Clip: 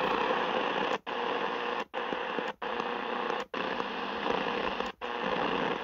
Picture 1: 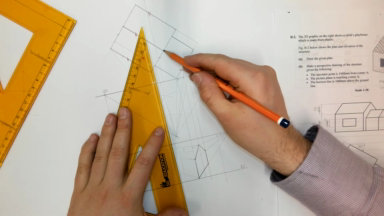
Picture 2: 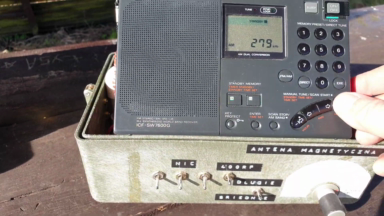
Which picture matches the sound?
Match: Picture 2